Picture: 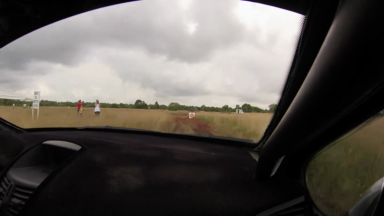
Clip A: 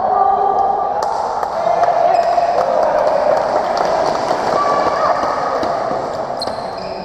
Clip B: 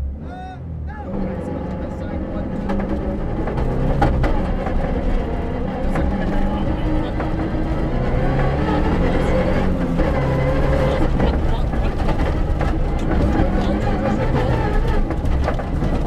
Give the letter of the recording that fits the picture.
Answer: B